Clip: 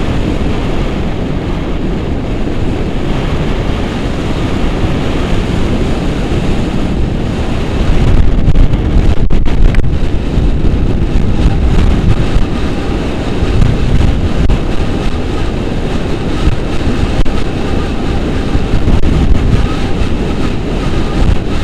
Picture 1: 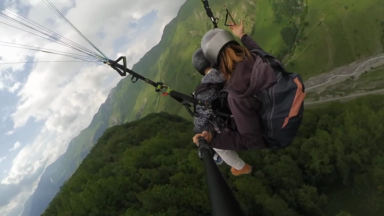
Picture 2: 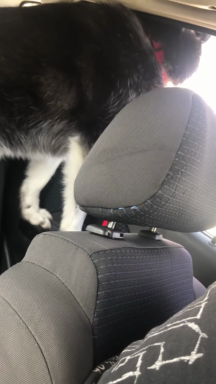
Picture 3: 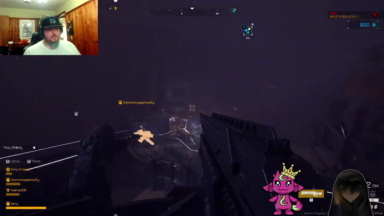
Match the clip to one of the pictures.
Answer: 1